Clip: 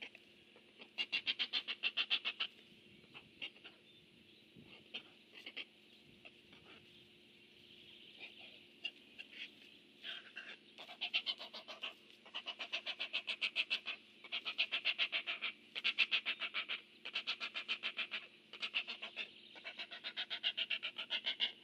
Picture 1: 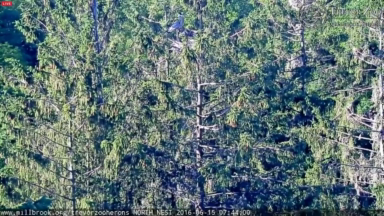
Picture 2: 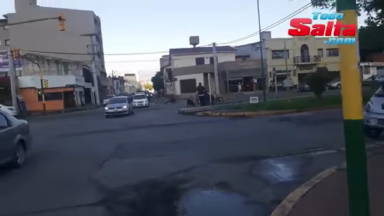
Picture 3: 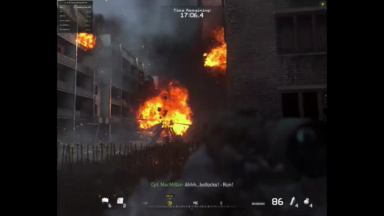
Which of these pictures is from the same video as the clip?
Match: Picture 1